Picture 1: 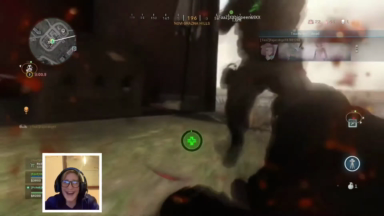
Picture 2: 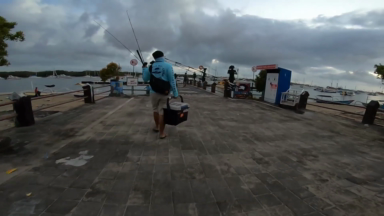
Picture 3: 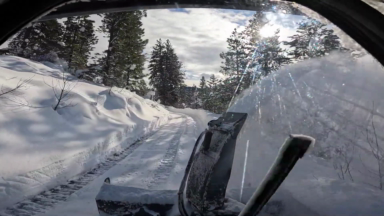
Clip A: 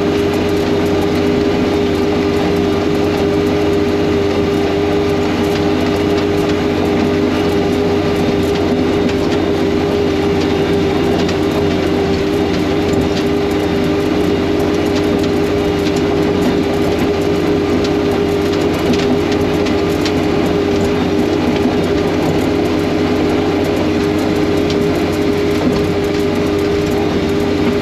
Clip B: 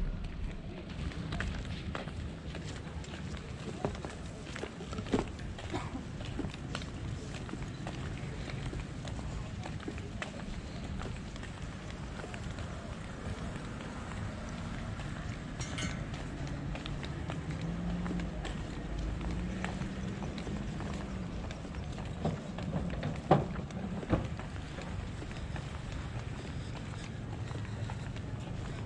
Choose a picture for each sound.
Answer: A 3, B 2